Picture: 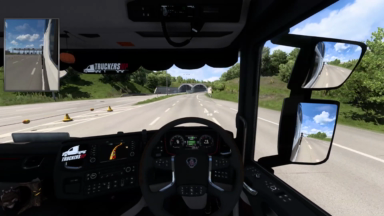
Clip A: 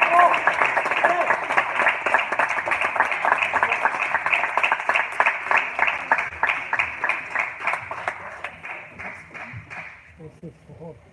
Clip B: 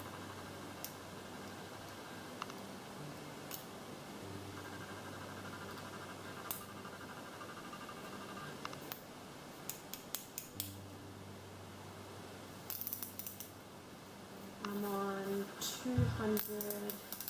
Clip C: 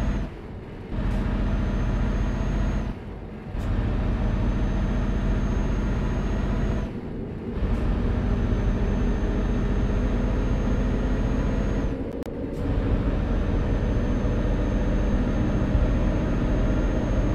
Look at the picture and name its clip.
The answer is C